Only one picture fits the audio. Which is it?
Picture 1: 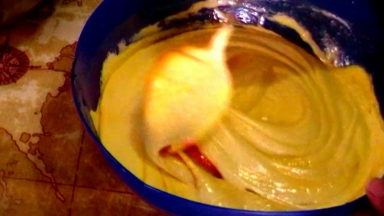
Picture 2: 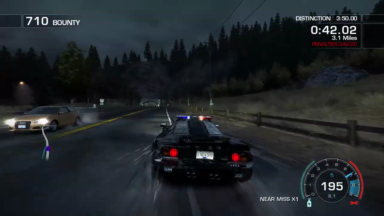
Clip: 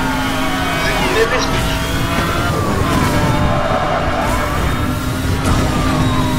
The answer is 2